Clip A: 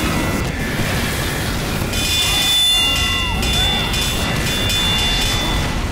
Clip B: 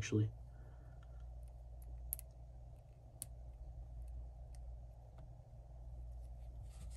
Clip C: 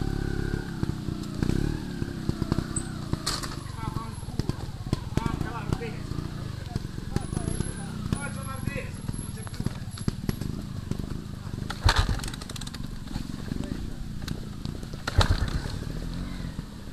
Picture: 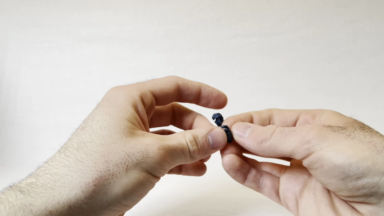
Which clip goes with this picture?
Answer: B